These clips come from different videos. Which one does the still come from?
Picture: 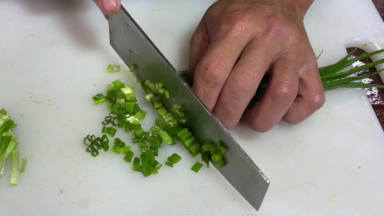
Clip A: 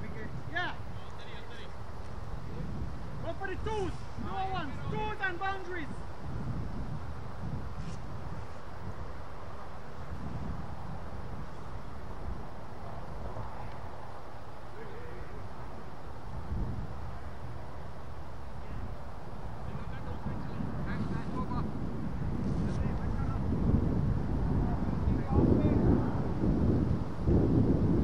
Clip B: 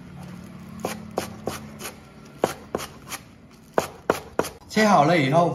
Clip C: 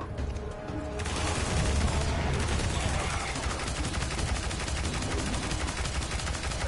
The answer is B